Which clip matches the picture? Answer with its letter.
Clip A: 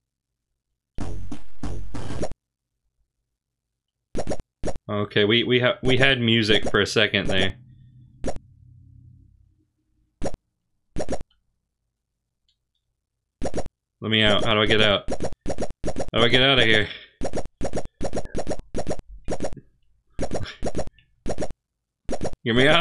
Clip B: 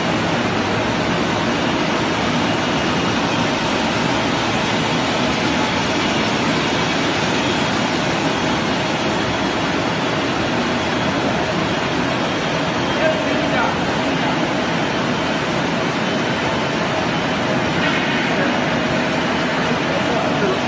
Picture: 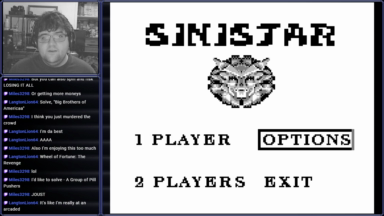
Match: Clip A